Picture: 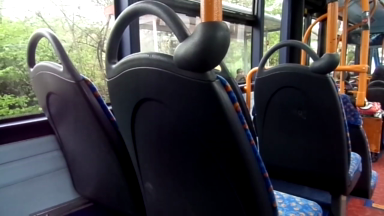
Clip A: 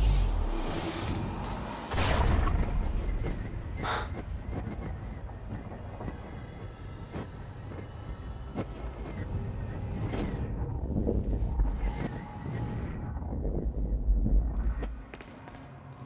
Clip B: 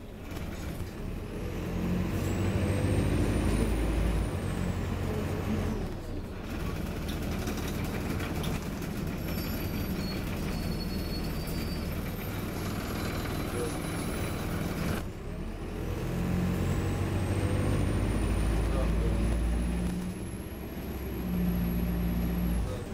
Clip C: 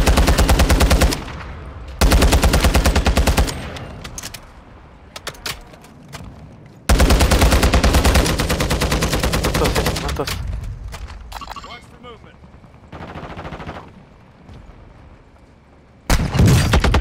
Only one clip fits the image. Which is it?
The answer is B